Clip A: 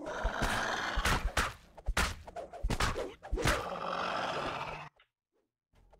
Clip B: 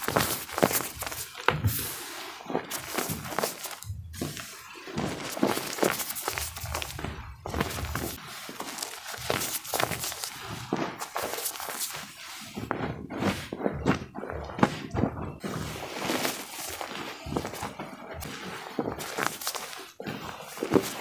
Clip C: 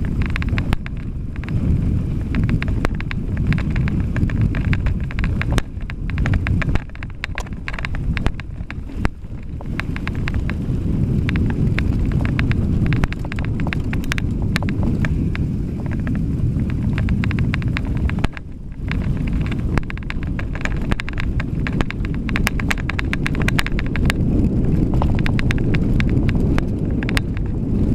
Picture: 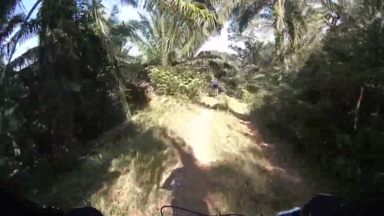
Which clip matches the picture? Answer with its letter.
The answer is C